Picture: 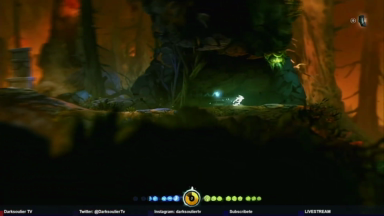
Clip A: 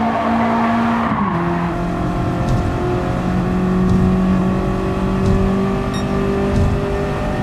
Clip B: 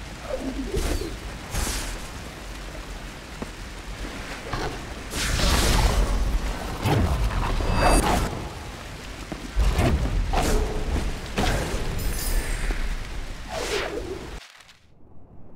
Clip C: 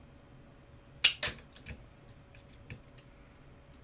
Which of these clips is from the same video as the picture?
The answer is B